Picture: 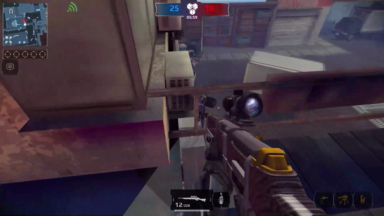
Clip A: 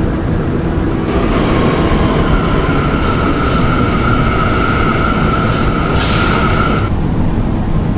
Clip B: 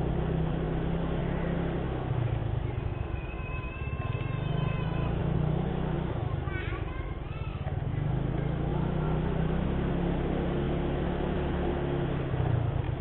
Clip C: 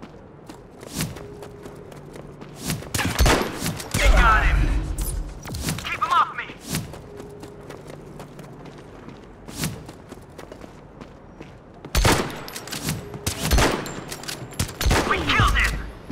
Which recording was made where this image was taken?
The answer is C